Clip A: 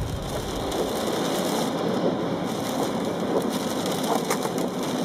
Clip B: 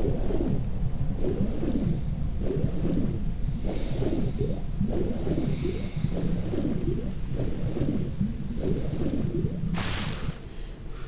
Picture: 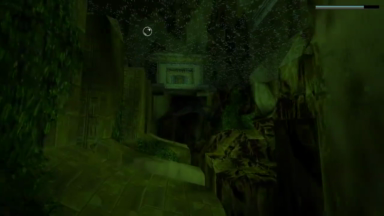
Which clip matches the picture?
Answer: B